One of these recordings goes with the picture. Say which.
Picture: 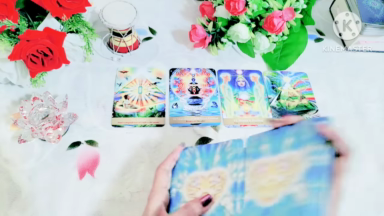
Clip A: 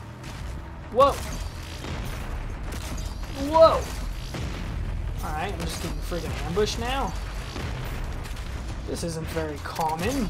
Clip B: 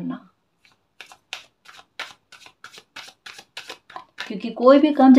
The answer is B